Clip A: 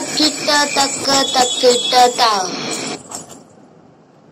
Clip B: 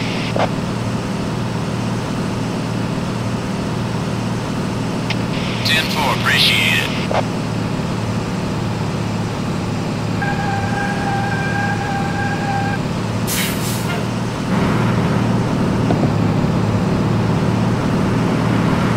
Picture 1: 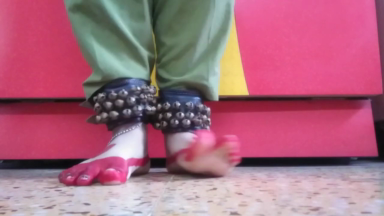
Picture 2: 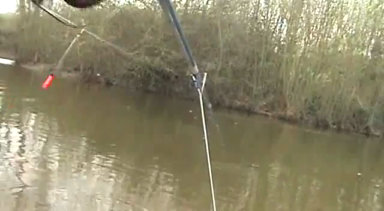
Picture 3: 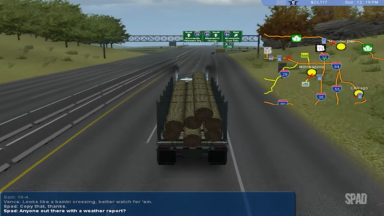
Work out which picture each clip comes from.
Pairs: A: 1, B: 3